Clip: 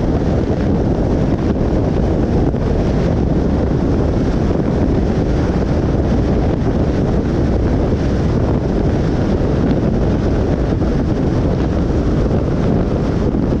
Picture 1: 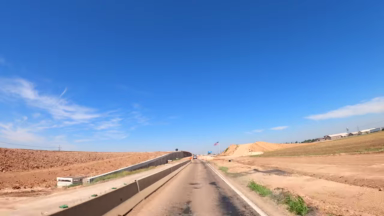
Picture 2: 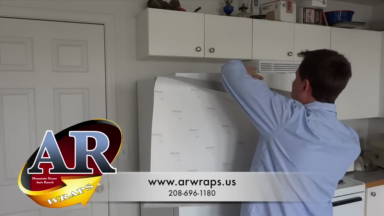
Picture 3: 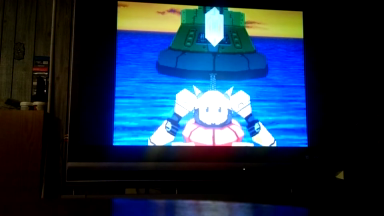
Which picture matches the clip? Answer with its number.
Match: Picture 1